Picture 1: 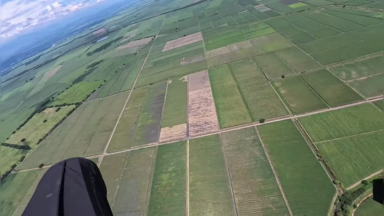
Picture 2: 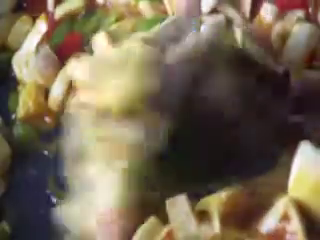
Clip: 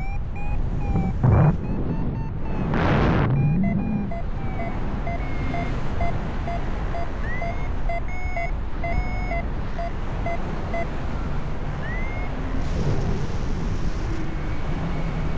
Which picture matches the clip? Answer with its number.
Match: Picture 1